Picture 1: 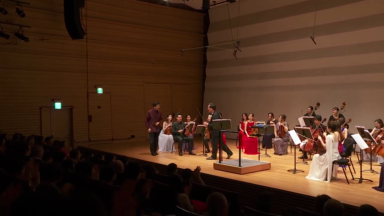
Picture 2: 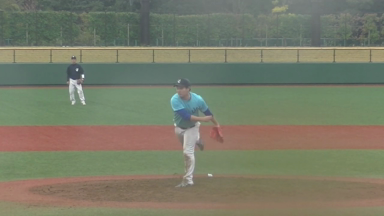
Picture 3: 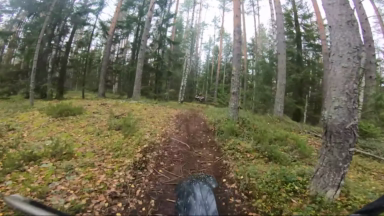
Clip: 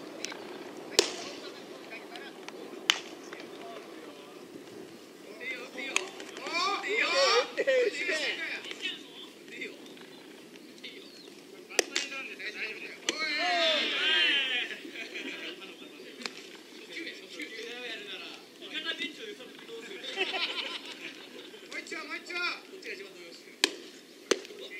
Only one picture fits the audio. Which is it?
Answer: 2